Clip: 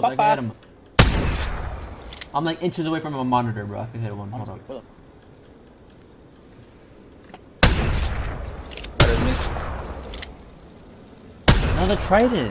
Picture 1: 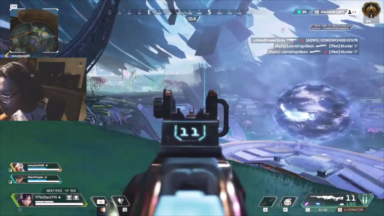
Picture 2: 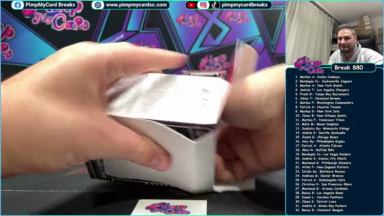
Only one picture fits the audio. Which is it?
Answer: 1